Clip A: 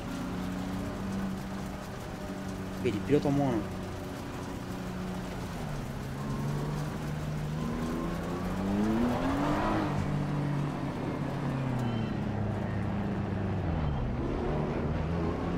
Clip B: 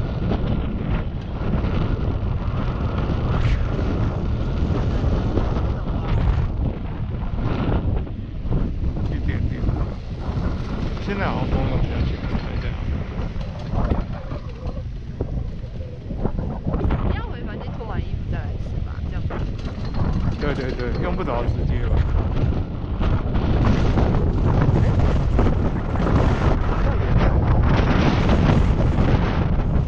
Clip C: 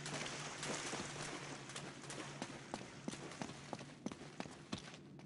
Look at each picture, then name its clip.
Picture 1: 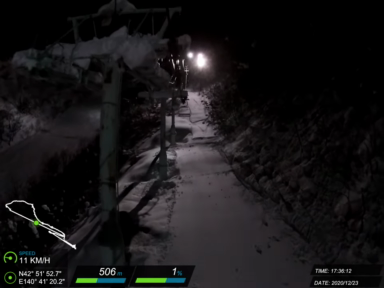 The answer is B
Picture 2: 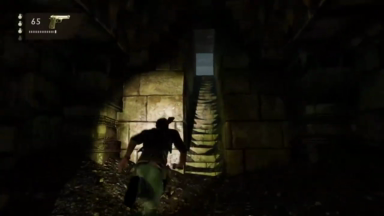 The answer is C